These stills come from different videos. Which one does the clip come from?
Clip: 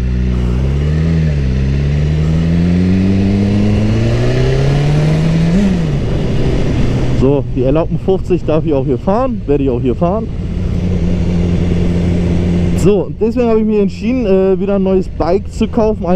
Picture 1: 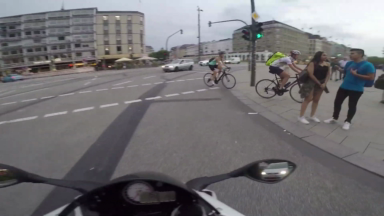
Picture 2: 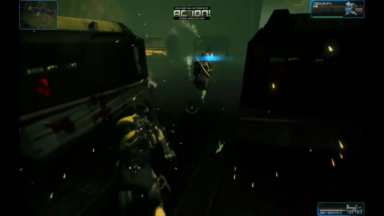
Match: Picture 1